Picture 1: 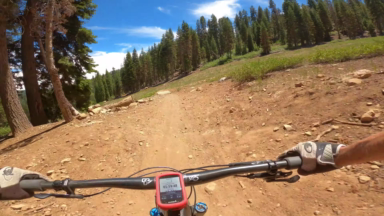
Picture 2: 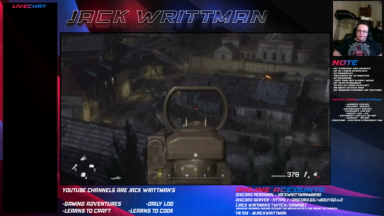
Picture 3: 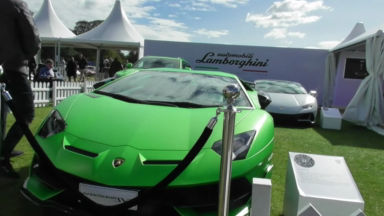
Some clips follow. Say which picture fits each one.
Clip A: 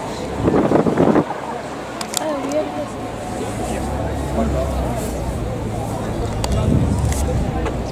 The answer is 3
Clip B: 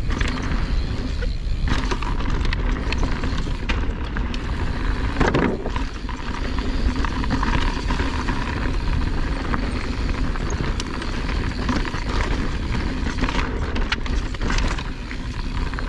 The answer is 1